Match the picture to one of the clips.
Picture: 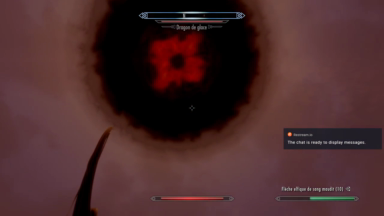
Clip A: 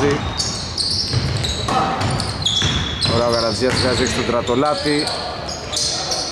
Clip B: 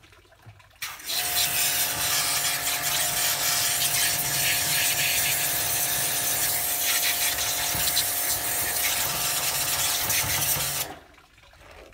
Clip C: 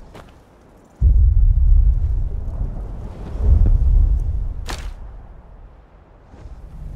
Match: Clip C